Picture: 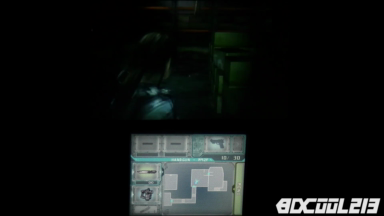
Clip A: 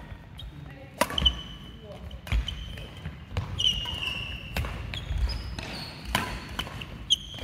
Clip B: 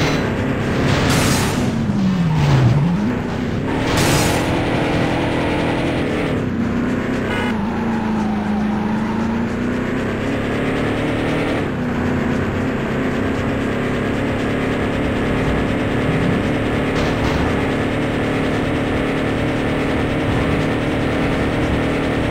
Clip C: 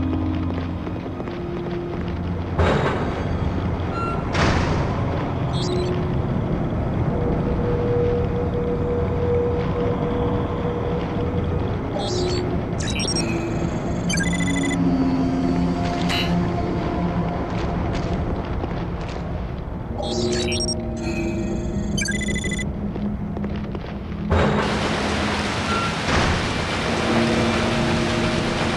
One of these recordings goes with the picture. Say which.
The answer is C